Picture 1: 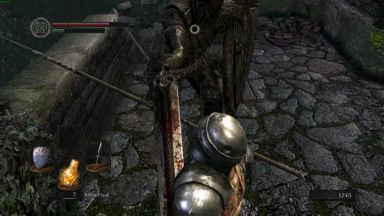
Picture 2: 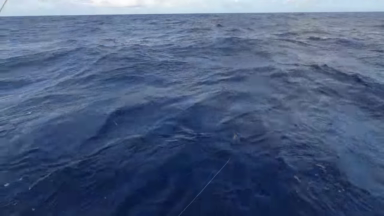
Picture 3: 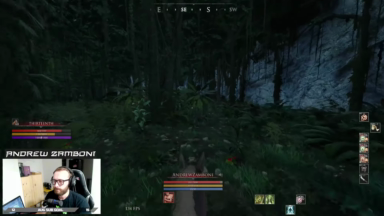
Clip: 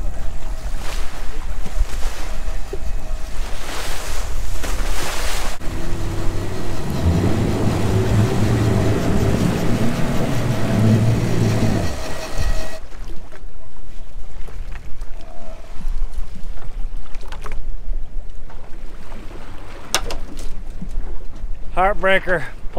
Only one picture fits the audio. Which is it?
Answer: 2